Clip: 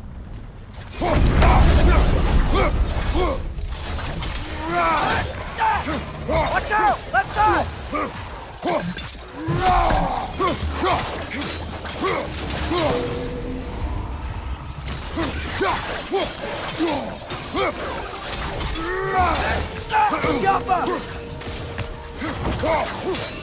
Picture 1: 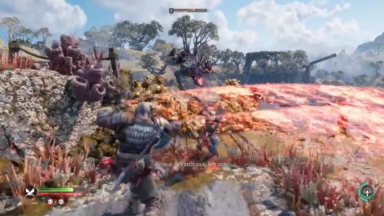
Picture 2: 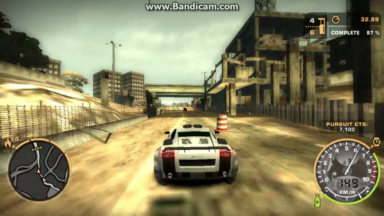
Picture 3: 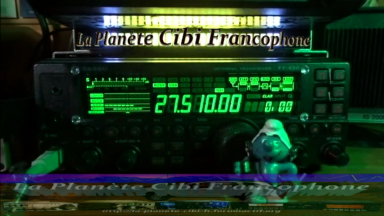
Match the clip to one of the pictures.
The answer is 1